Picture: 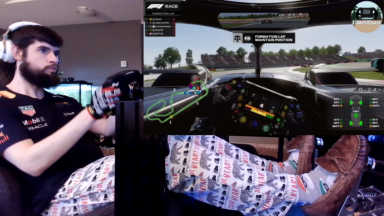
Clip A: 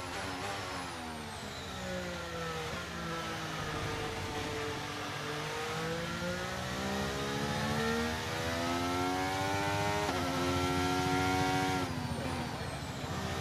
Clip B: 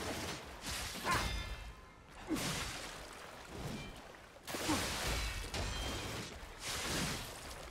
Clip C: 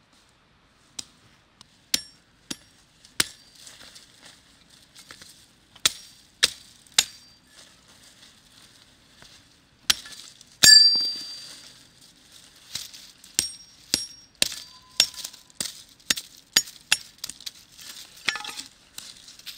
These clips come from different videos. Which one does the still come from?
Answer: A